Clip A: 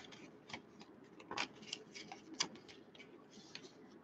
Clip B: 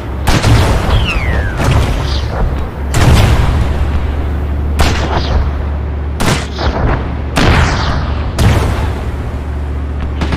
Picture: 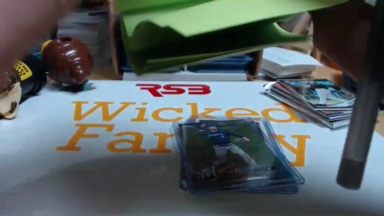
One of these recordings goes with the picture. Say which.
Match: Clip A